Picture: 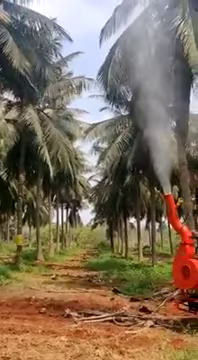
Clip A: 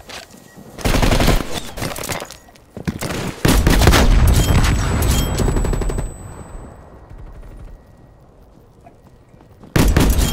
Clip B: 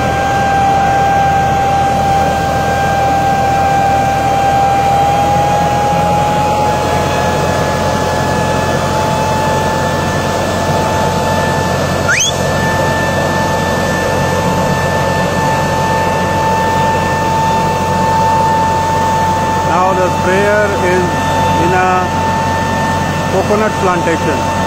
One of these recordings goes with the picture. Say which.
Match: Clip B